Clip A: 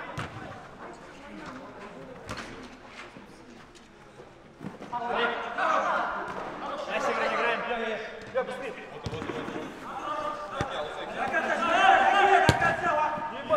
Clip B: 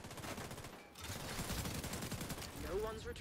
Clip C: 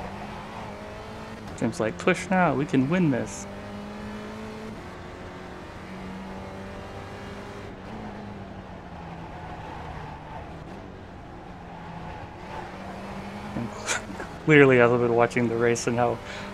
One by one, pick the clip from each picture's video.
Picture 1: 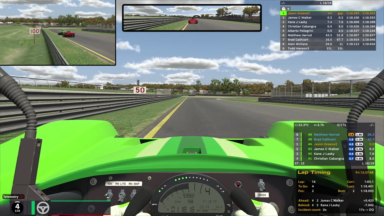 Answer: C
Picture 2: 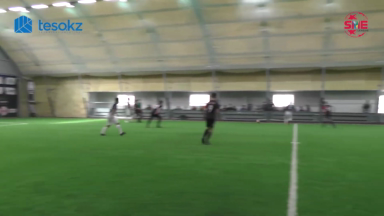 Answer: A